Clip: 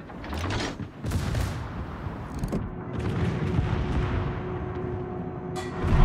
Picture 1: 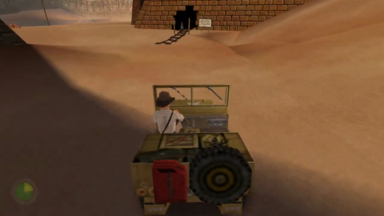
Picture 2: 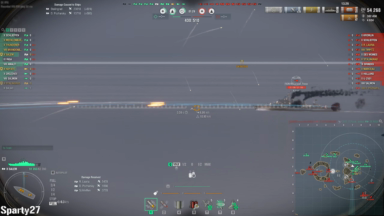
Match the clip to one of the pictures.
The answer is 2